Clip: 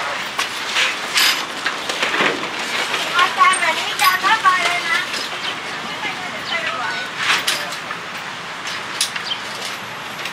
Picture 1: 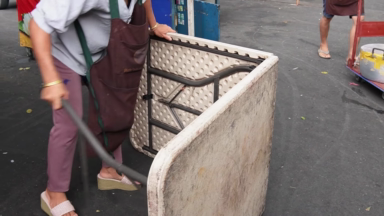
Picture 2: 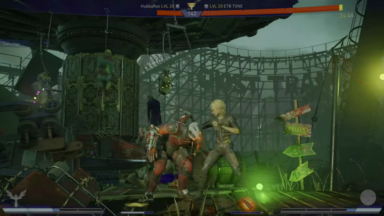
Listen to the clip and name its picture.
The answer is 1